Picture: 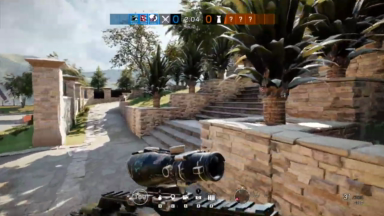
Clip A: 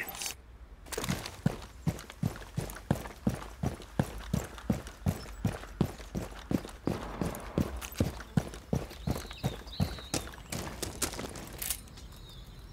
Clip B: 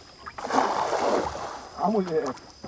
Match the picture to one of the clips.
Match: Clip A